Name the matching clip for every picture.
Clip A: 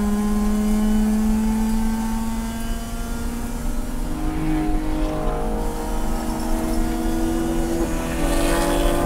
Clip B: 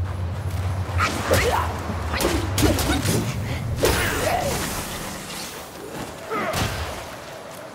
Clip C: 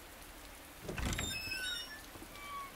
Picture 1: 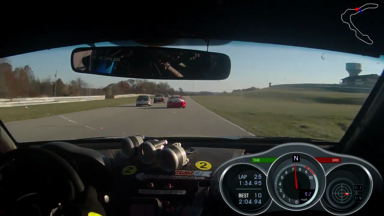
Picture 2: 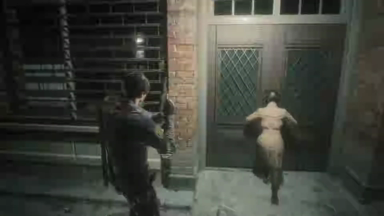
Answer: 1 A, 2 C